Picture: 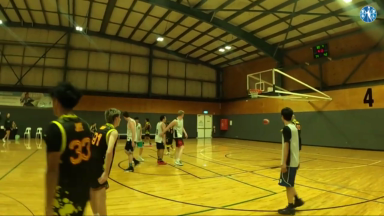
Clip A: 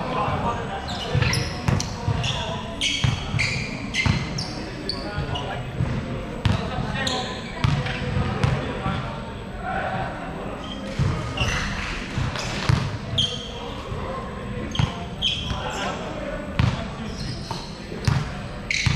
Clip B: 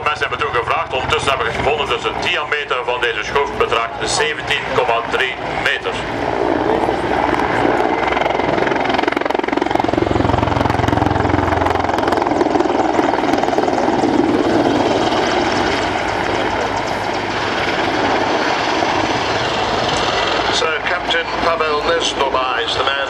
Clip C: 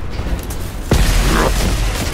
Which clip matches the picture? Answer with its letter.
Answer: A